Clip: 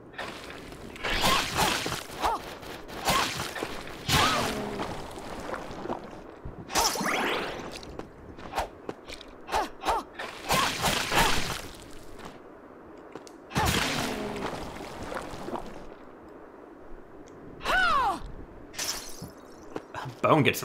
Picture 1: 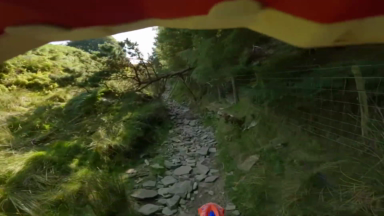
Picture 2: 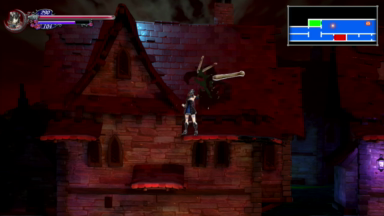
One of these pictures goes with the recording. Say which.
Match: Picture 2